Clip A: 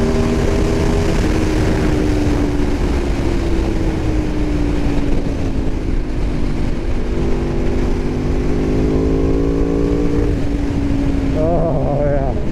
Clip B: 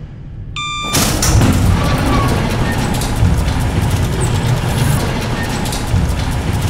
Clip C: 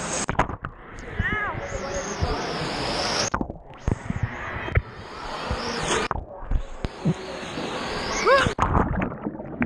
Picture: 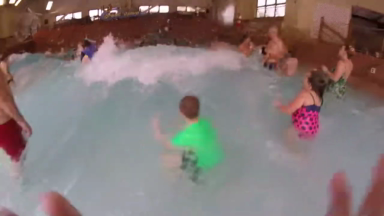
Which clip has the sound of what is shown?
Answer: C